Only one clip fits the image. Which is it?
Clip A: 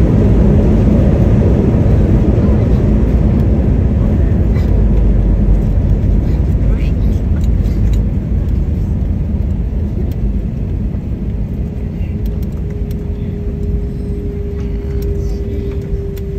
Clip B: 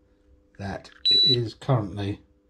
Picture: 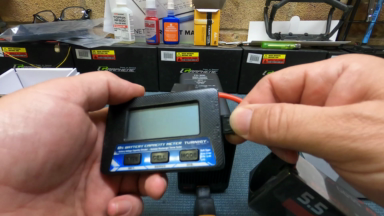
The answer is B